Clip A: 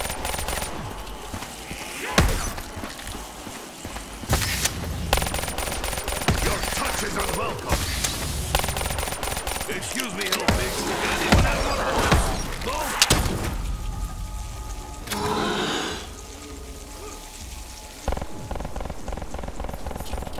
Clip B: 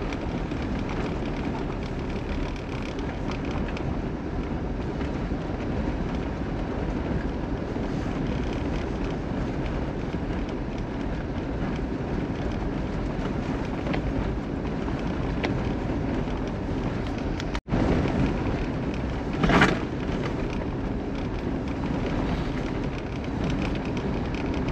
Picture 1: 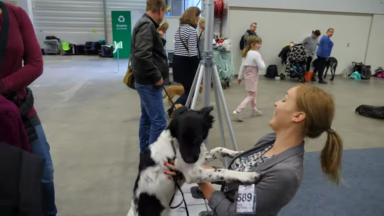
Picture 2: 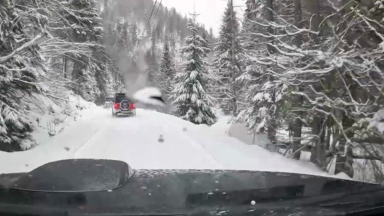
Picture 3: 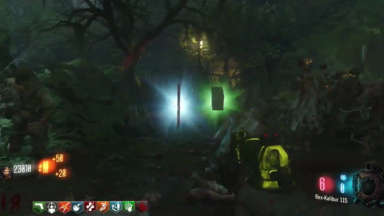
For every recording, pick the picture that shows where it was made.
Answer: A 3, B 2